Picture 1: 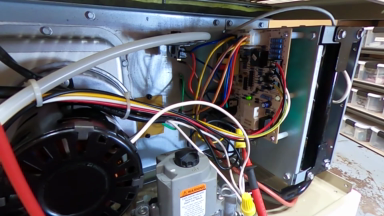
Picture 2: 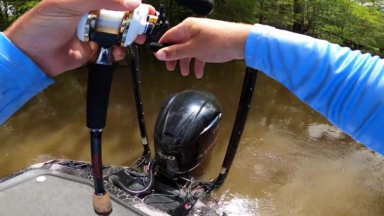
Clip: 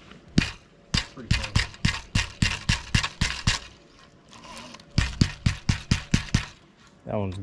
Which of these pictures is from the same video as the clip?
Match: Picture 2